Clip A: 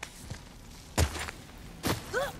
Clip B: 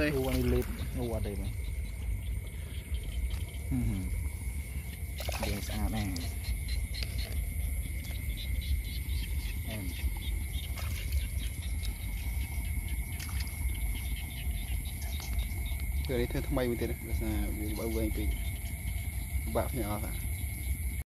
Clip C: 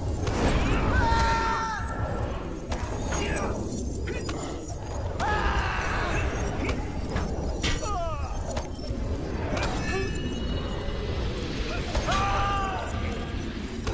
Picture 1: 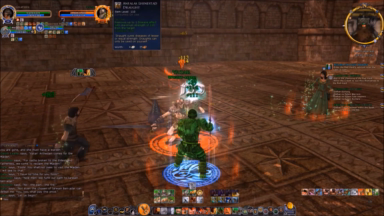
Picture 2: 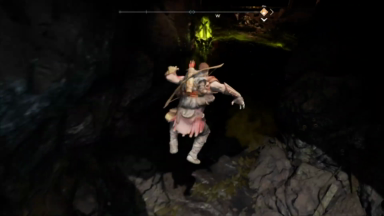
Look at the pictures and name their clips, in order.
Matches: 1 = C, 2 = A